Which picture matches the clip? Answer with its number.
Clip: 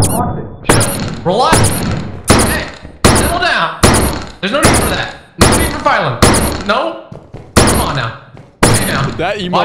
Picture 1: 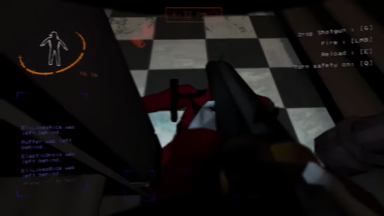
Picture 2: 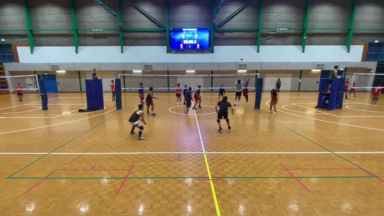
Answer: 1